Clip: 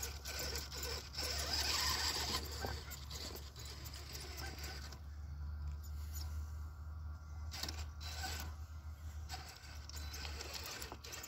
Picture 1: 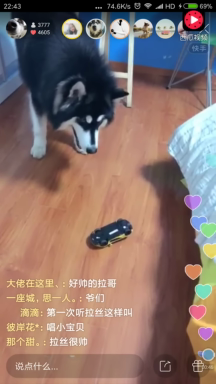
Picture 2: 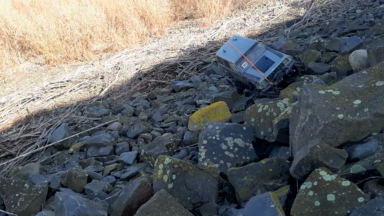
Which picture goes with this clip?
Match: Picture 2